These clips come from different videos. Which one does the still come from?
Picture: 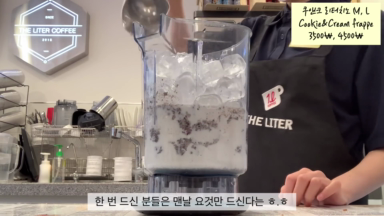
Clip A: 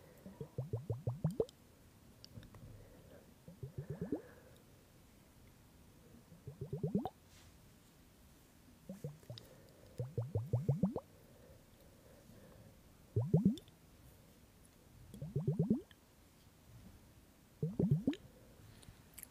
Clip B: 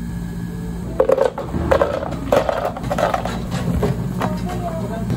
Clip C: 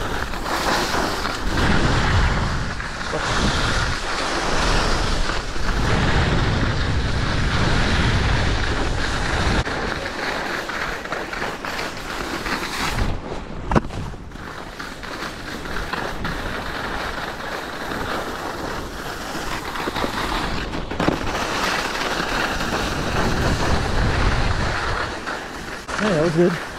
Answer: B